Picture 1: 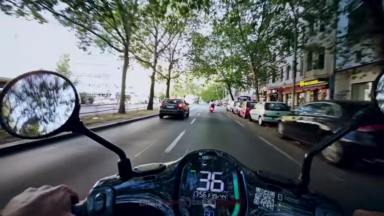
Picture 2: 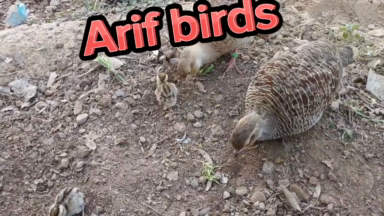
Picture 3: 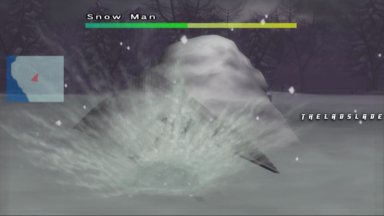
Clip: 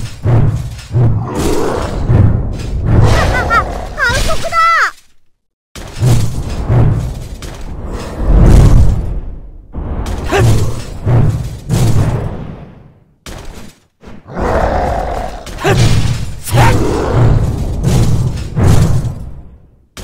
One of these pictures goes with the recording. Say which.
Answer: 3